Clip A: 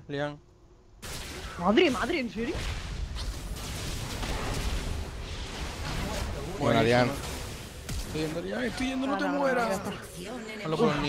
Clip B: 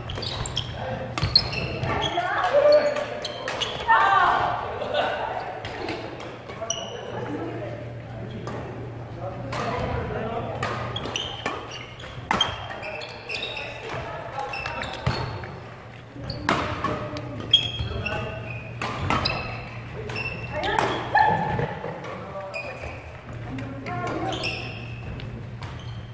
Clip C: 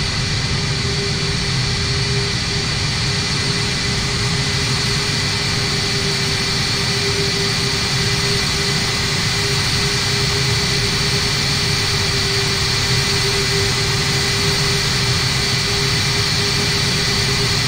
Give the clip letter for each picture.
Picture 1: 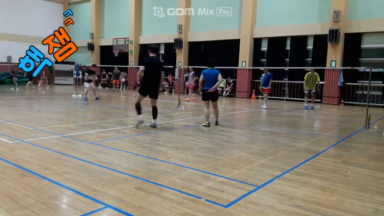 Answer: B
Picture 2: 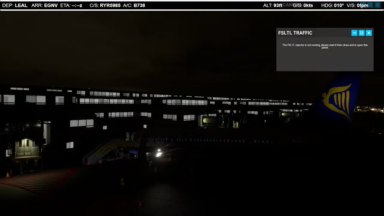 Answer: C